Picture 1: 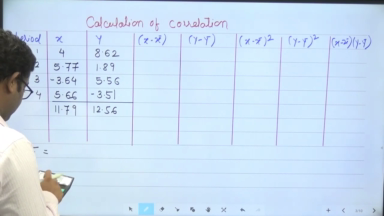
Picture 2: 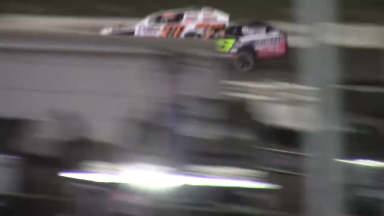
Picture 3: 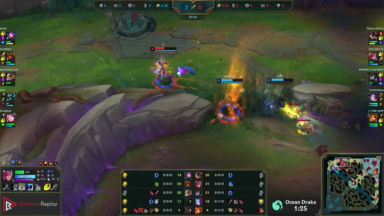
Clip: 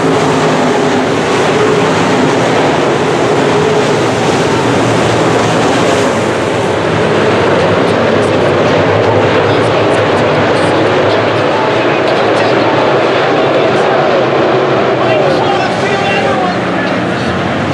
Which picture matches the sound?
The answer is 2